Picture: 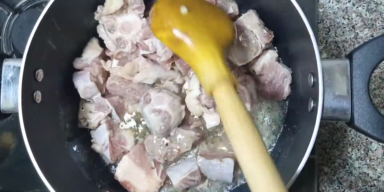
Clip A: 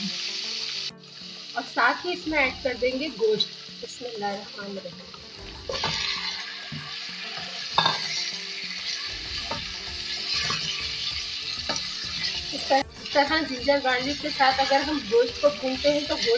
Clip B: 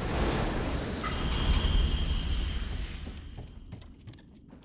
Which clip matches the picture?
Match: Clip A